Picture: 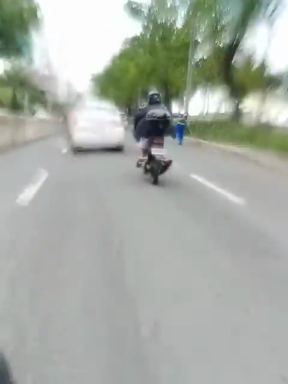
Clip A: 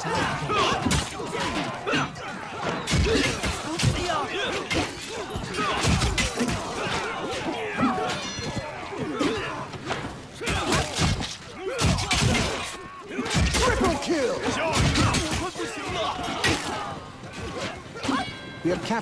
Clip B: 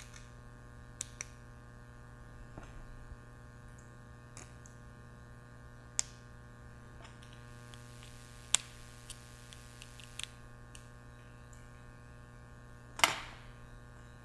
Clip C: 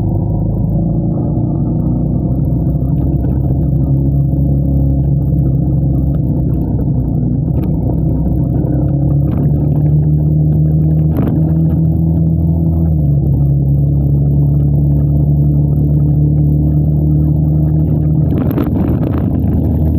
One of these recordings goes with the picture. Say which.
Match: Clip C